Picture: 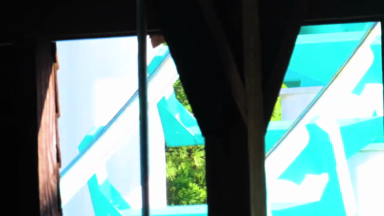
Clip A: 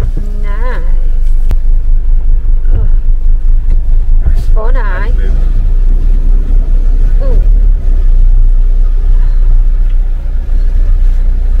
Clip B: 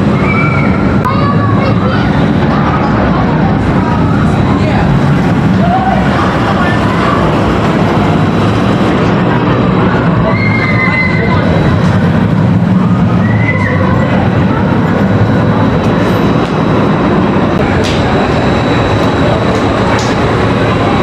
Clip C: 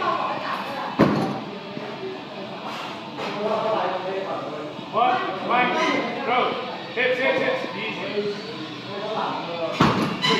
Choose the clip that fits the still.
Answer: B